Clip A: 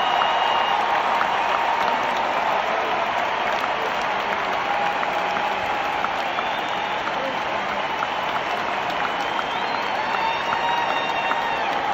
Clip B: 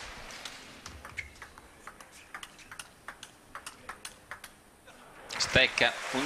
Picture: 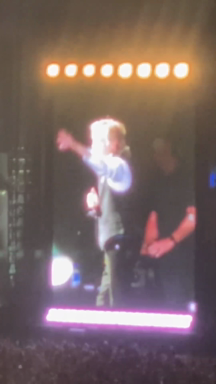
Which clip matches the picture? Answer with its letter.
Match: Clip A